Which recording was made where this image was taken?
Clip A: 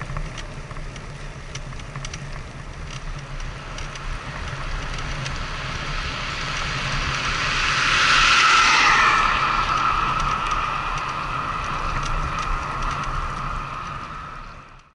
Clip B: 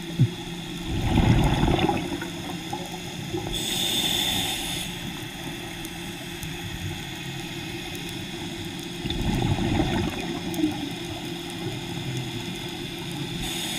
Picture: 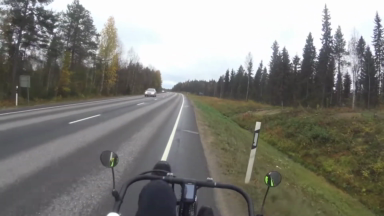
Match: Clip A